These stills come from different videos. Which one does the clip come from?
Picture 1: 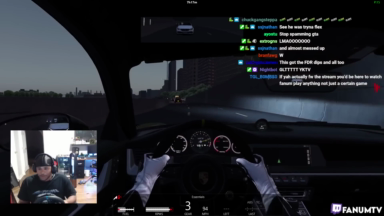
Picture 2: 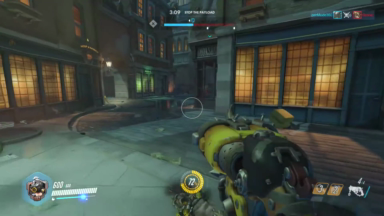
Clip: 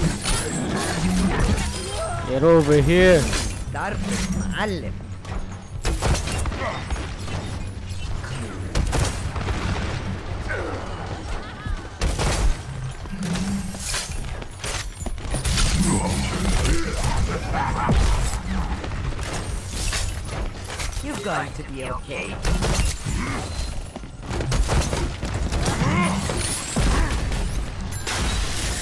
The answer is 2